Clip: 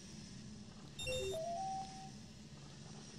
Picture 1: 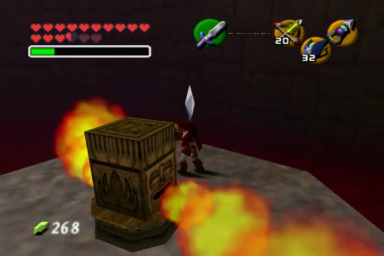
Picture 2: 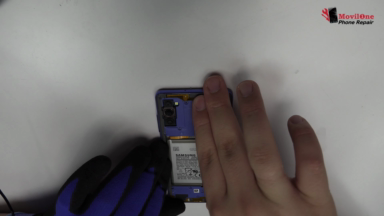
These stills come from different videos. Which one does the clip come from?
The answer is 1